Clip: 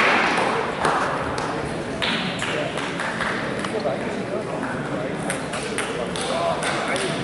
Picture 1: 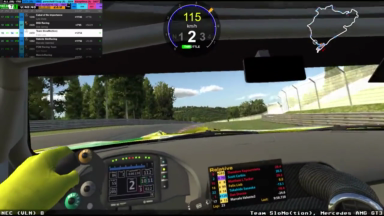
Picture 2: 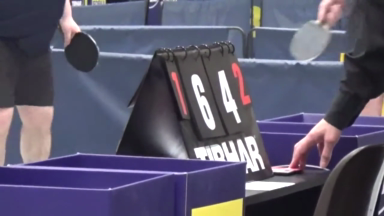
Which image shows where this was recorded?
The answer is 2